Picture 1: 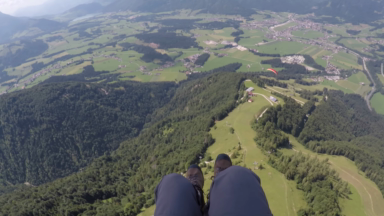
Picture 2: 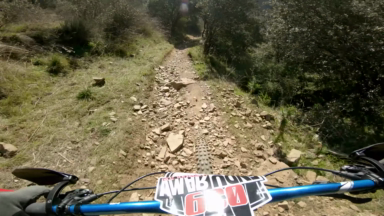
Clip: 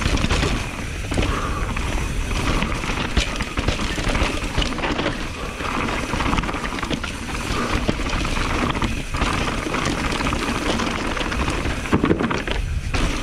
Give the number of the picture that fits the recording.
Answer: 2